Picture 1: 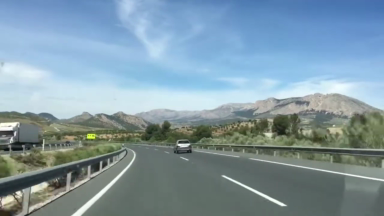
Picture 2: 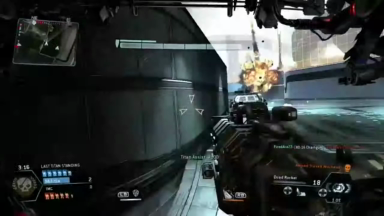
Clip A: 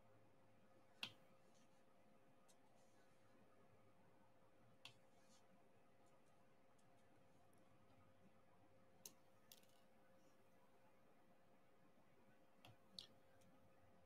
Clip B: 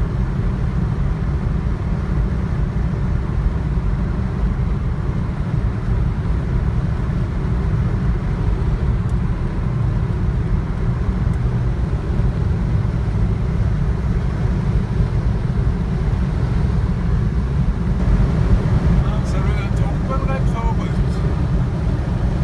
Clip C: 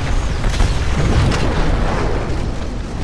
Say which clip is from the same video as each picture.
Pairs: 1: B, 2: C